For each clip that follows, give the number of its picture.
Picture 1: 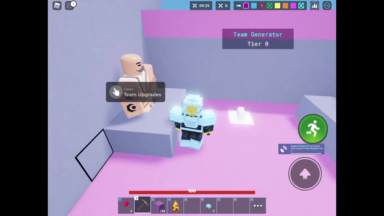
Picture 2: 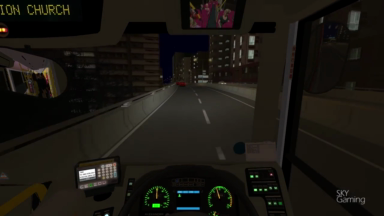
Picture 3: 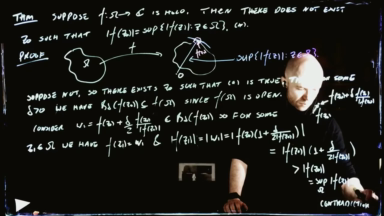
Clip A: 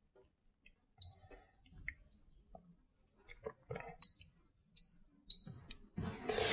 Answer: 3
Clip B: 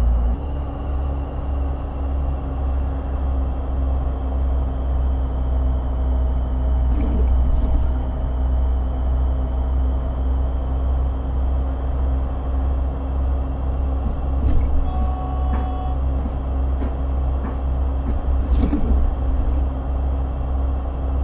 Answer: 2